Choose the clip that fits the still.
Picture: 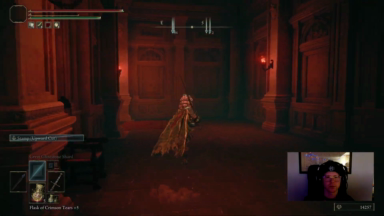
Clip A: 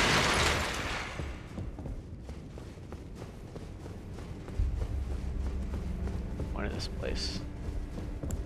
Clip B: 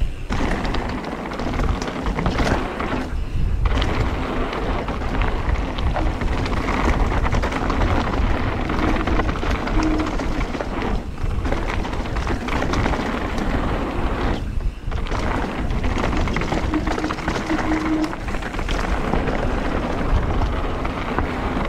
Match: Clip A